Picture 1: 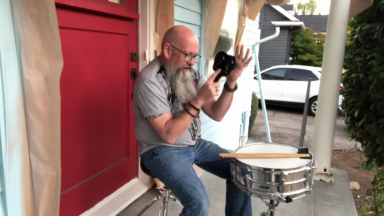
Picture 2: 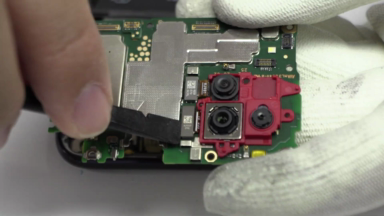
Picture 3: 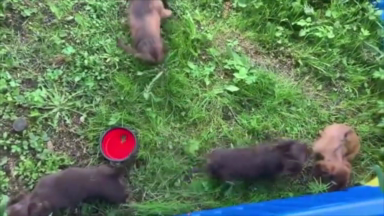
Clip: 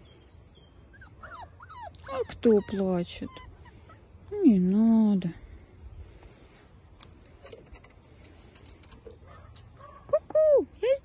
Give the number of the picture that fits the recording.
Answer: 3